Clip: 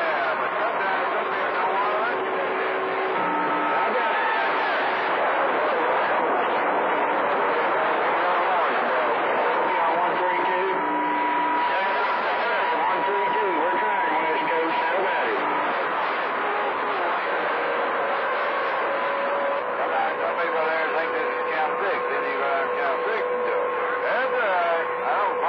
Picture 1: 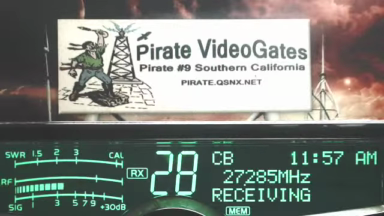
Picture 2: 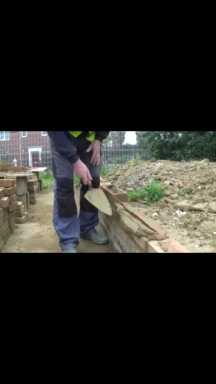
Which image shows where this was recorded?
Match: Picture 1